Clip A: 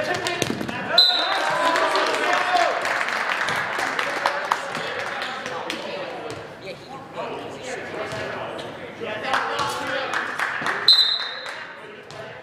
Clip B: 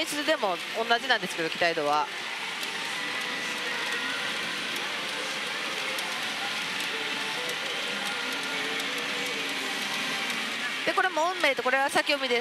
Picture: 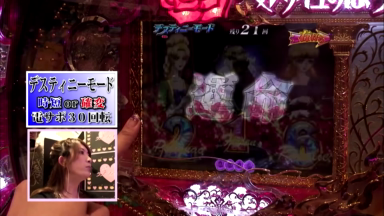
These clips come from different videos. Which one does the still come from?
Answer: B